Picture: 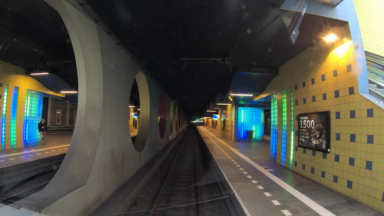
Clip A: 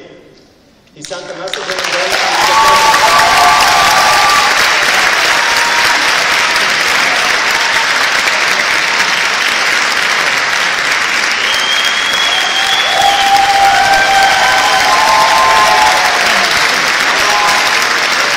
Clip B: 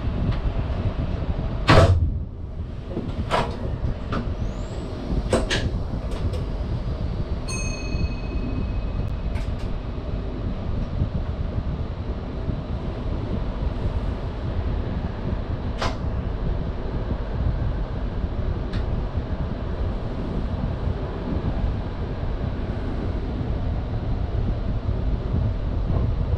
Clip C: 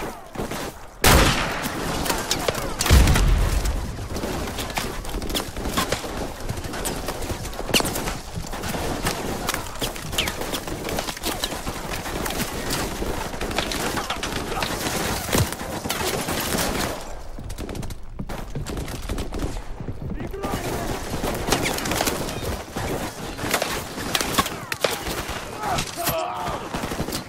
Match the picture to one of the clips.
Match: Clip B